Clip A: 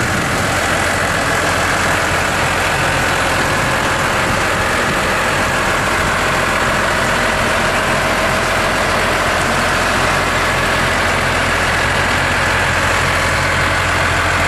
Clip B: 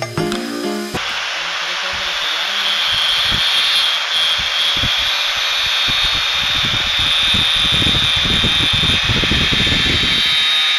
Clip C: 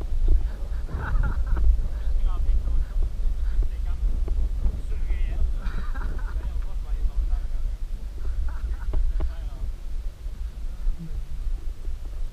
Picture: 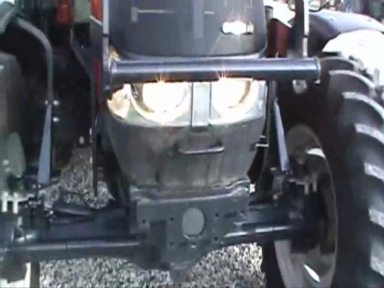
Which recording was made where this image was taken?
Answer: A